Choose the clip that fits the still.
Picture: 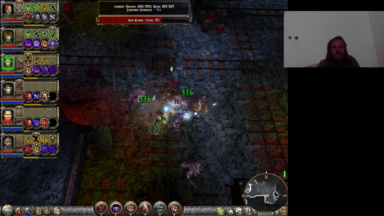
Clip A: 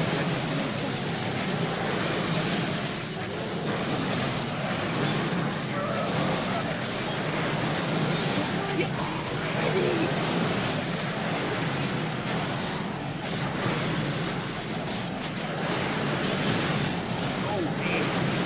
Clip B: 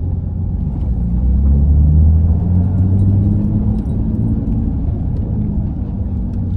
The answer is A